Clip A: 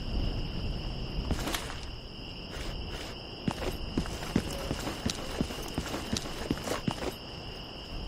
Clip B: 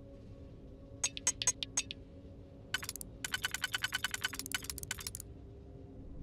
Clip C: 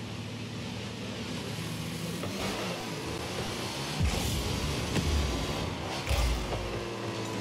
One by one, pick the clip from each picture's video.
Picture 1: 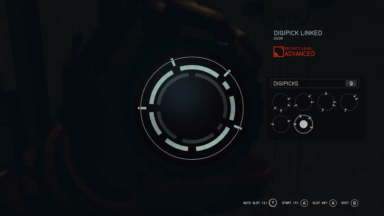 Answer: B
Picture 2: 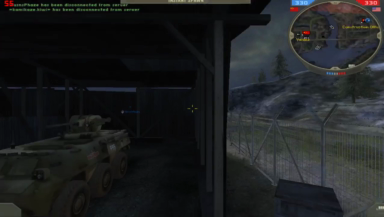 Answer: A